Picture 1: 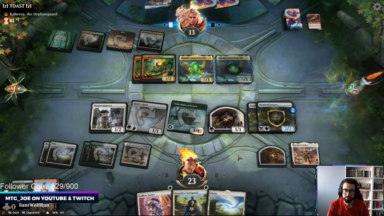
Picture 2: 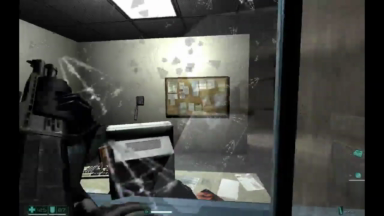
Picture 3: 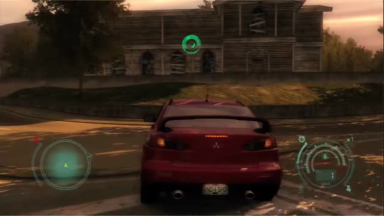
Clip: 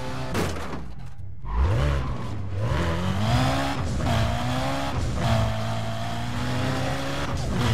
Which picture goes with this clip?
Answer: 3